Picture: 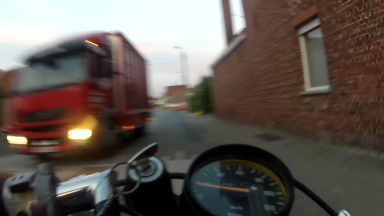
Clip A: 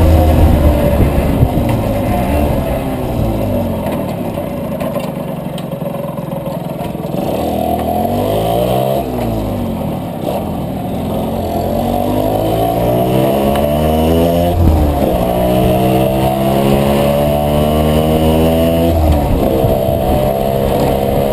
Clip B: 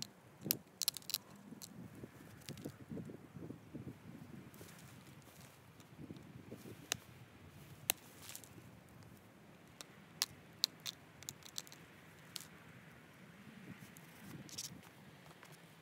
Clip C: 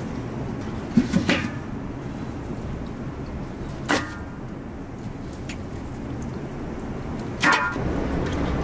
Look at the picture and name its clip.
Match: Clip A